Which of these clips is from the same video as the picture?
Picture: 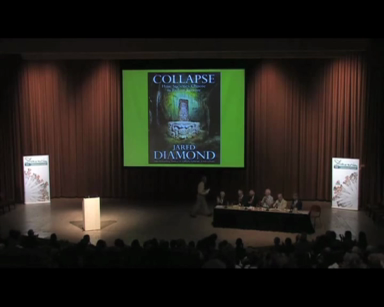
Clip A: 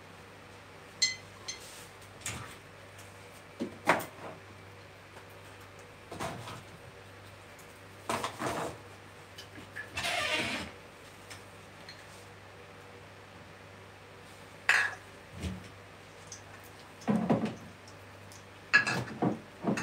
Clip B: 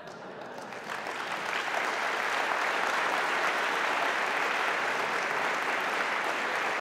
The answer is B